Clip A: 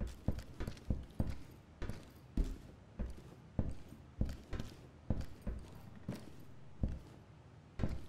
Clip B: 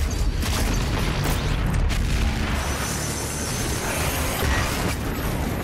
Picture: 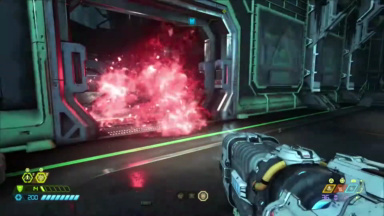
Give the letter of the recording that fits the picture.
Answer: B